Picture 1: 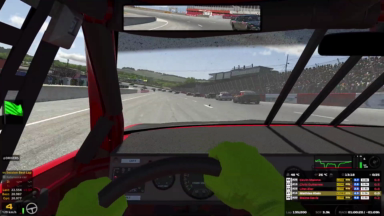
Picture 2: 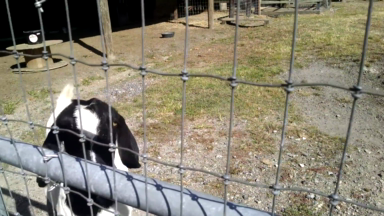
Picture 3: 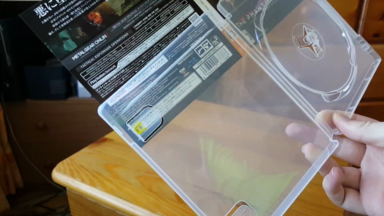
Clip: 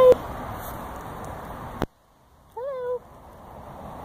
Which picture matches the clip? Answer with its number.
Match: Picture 2